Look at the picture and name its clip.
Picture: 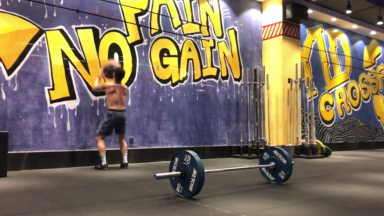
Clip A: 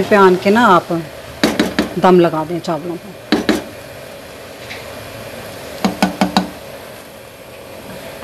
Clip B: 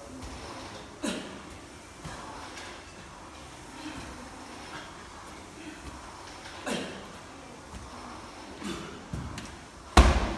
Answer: B